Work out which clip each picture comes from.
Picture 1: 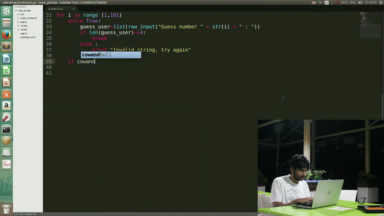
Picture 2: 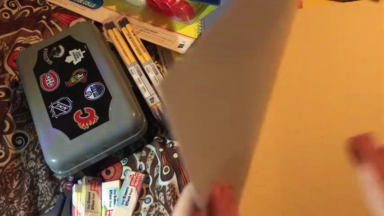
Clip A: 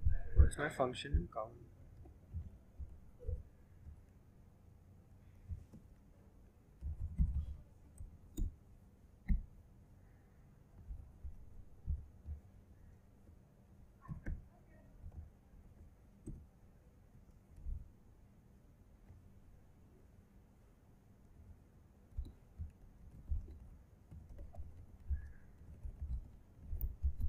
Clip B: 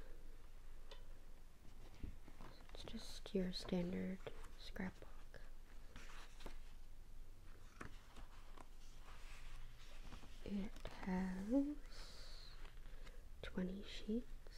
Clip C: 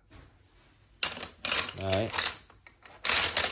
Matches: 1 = A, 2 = B